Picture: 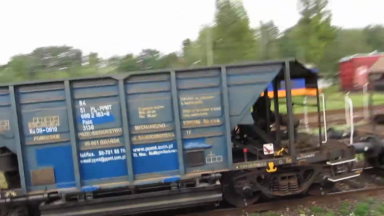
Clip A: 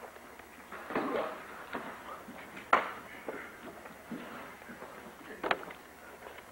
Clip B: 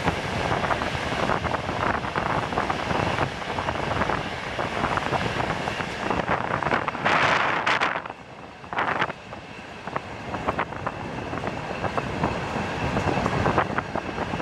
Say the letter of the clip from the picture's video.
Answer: B